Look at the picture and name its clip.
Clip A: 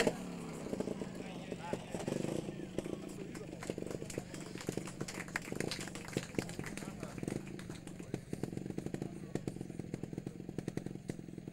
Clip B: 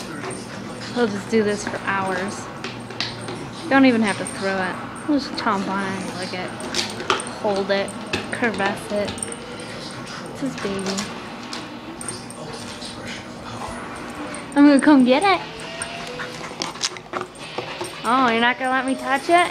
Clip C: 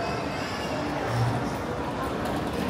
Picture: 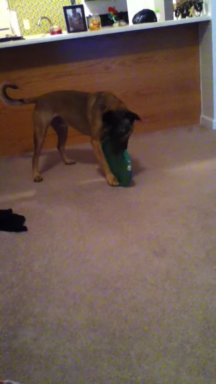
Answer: B